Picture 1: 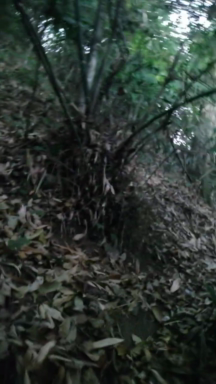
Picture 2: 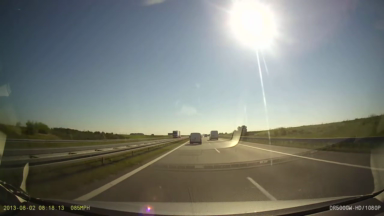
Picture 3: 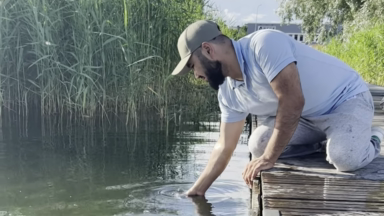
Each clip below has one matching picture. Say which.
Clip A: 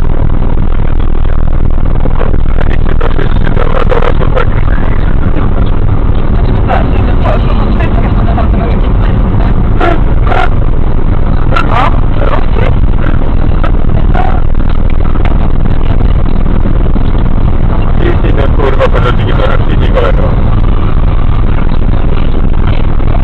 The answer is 2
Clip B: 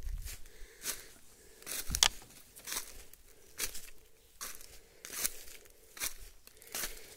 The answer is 1